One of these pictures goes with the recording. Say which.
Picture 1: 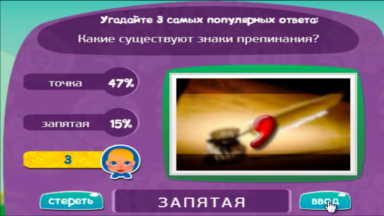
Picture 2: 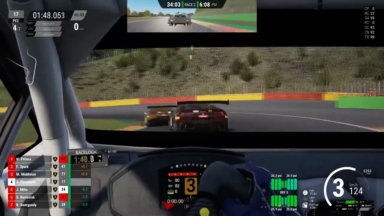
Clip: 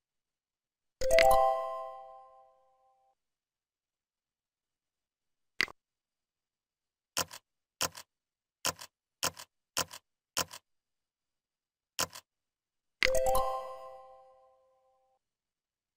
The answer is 1